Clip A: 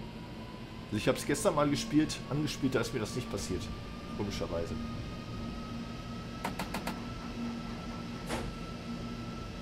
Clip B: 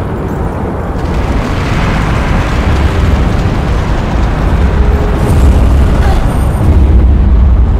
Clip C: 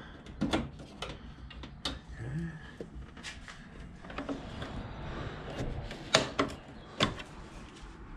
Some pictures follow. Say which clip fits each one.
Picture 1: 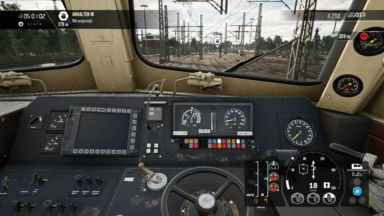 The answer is A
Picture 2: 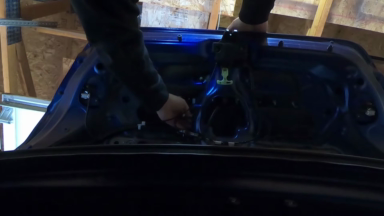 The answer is C